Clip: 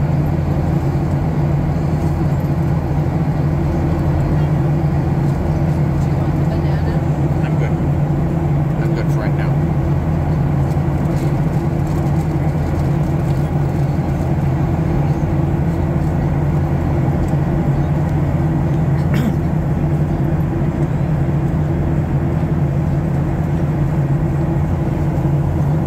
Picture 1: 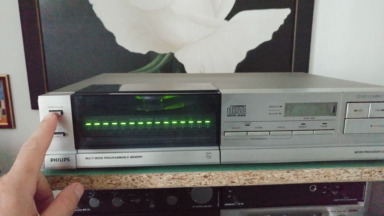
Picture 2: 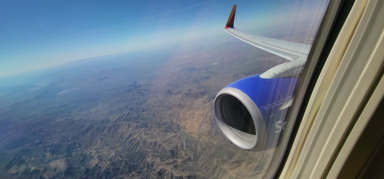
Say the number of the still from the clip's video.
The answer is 2